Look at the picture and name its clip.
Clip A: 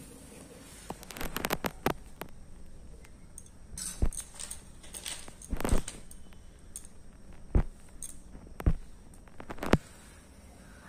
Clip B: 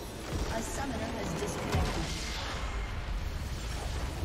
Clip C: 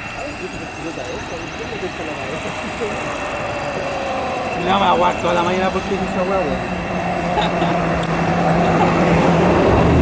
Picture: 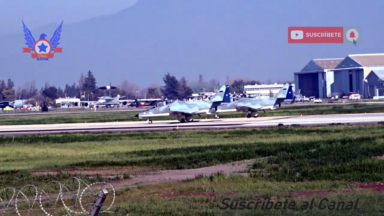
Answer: C